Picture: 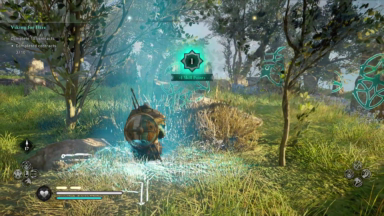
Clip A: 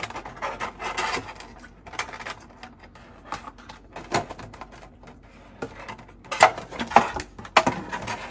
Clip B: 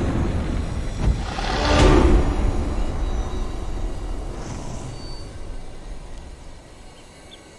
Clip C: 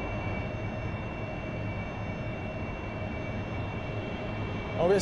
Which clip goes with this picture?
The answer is B